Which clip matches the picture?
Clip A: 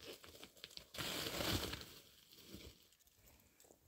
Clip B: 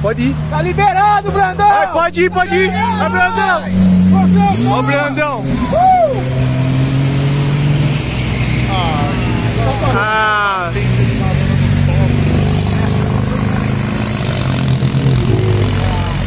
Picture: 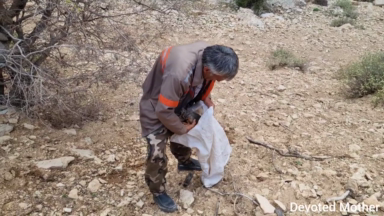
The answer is A